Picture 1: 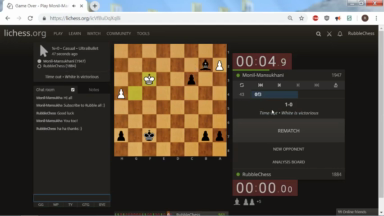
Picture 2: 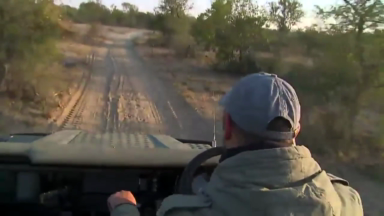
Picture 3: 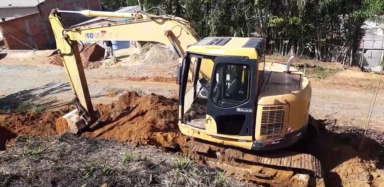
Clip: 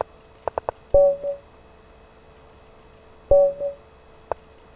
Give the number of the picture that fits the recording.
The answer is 1